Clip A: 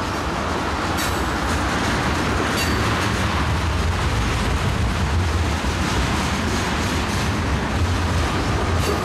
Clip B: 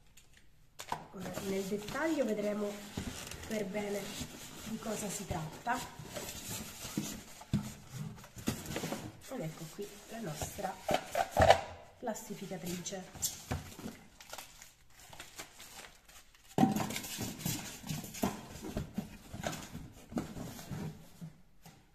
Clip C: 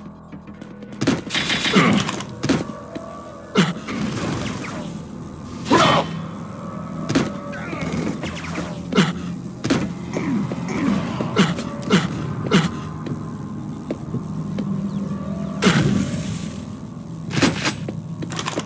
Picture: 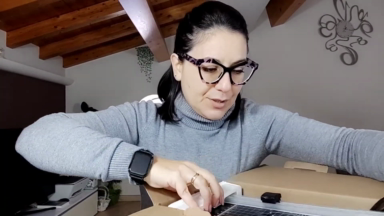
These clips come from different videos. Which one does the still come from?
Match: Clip B